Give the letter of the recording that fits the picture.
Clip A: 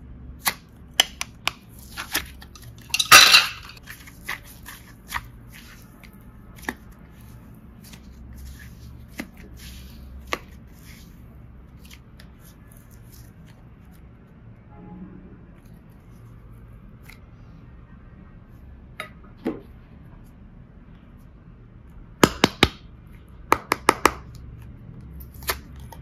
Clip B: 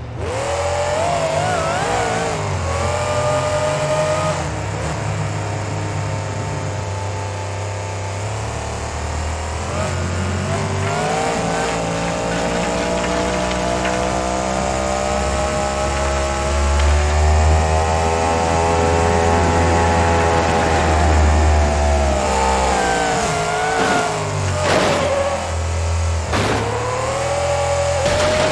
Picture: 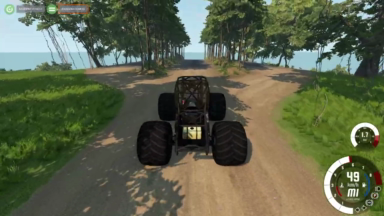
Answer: B